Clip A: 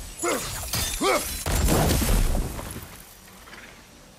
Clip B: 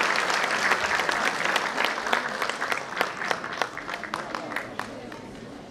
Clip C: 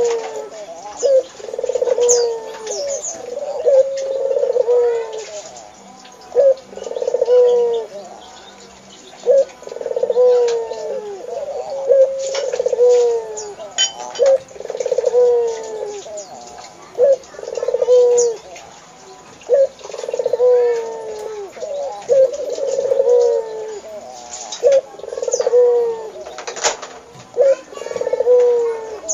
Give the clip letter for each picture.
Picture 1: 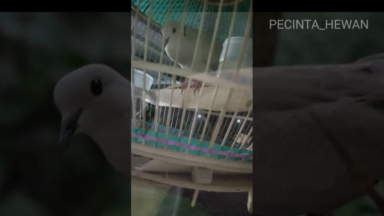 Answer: C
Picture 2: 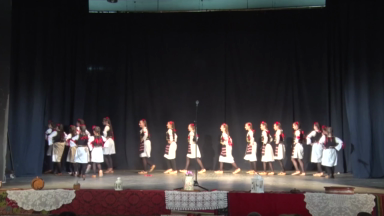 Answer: B